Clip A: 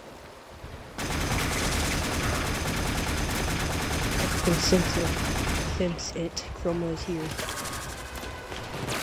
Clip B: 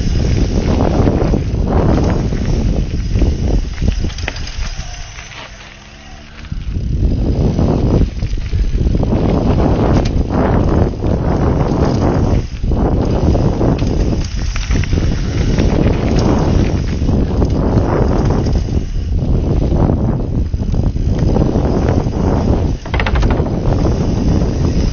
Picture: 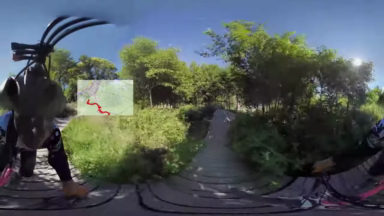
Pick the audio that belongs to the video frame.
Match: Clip B